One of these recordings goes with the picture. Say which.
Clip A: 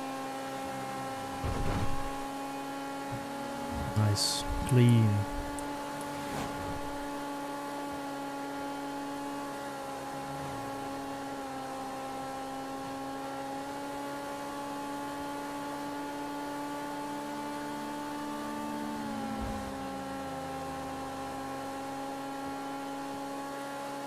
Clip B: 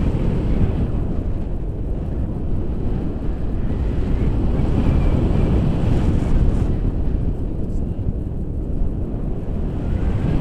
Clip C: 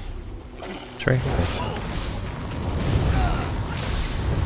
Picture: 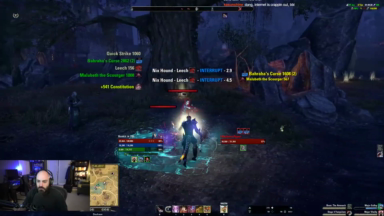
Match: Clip C